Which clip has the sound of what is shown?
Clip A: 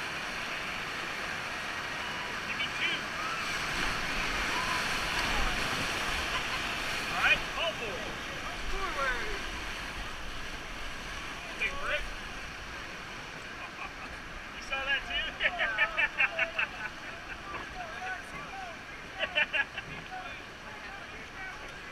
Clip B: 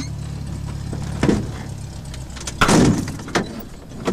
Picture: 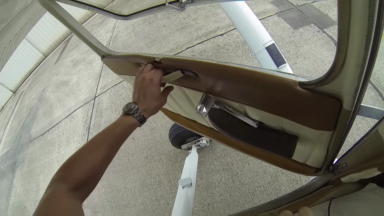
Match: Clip B